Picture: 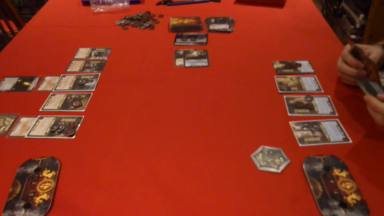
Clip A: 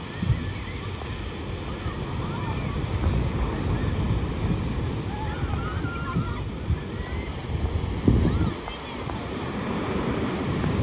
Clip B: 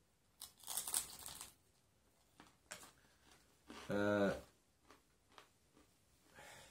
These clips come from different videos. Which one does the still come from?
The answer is B